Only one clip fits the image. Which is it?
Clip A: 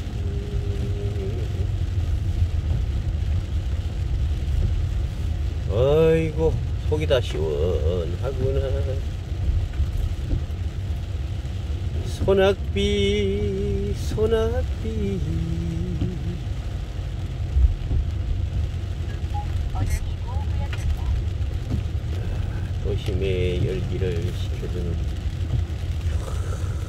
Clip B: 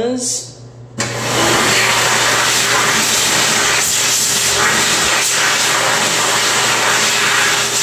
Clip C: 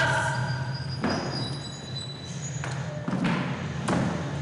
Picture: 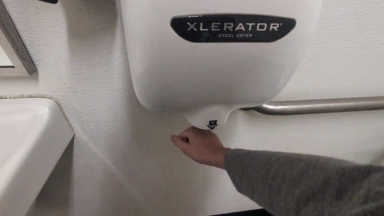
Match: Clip B